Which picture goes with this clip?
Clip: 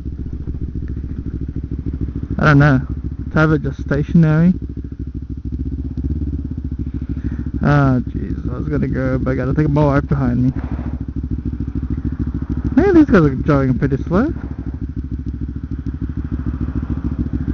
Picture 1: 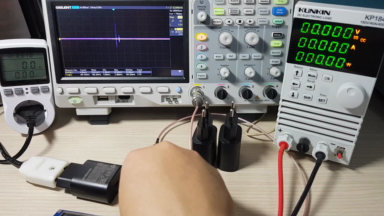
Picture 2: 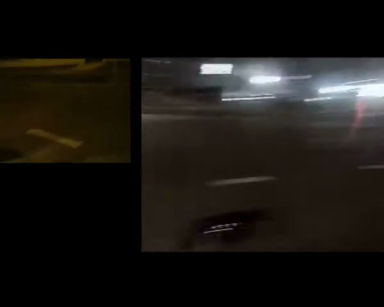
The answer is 2